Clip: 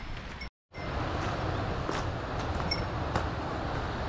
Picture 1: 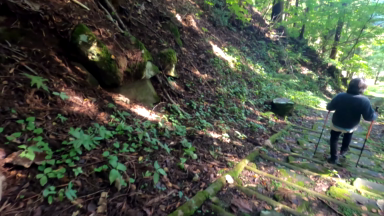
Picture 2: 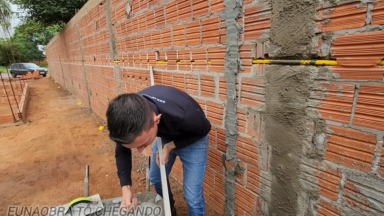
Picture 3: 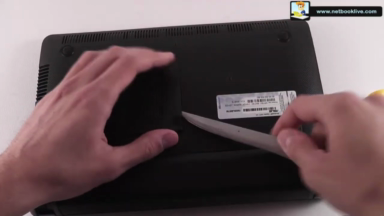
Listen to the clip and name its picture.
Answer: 1